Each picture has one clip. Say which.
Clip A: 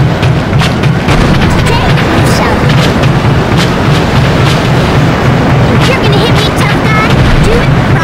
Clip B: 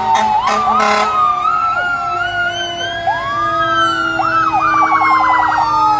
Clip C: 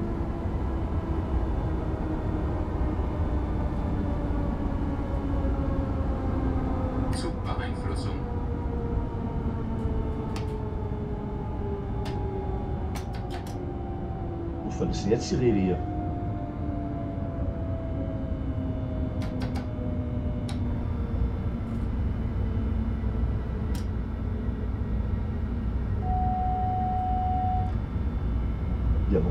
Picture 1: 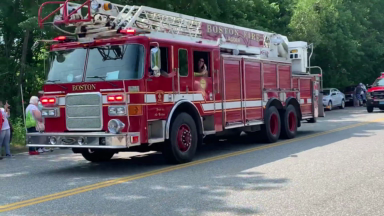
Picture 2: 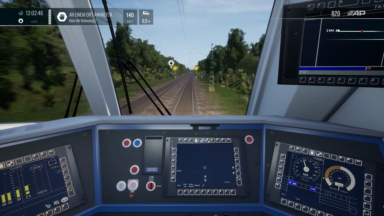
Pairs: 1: B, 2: C